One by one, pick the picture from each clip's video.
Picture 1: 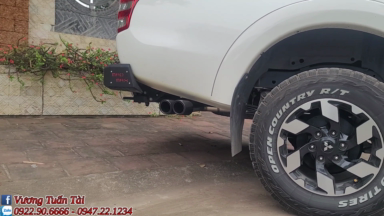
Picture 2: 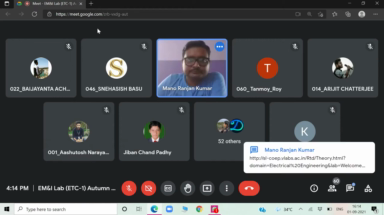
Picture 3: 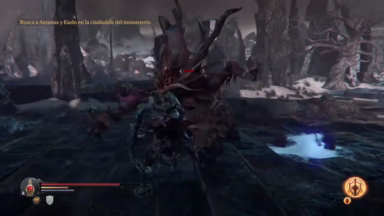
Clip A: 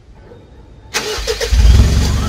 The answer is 1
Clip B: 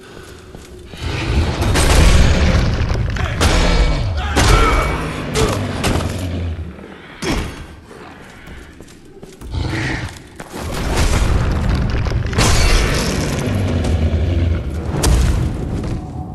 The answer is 3